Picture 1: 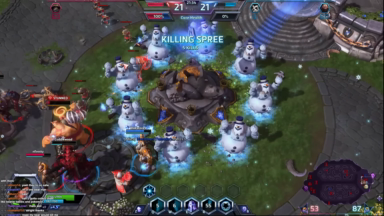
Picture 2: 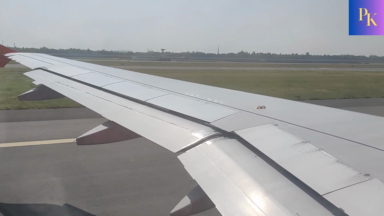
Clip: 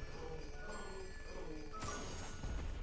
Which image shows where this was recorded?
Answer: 1